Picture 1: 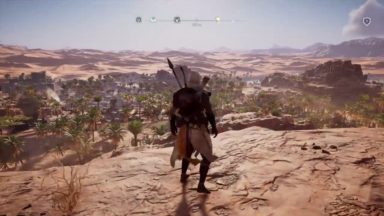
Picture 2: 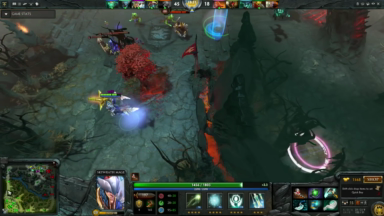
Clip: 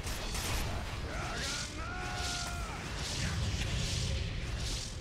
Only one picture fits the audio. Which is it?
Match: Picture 2